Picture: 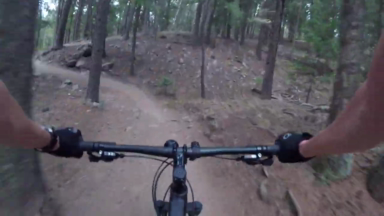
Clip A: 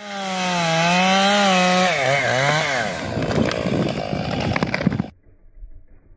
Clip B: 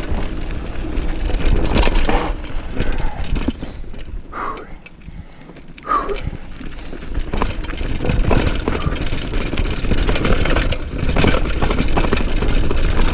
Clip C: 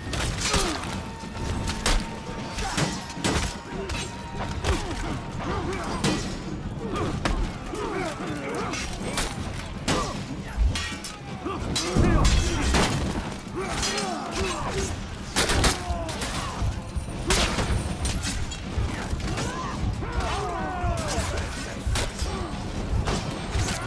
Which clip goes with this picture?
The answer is B